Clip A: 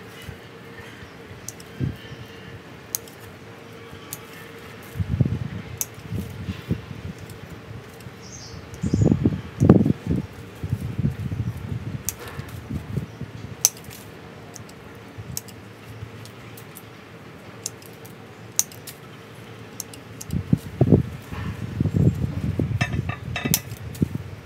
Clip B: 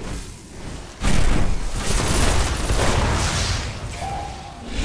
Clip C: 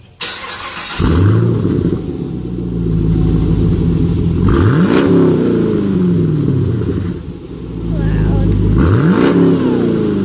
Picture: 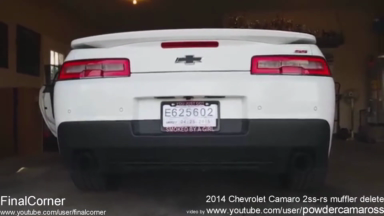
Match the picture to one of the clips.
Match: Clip C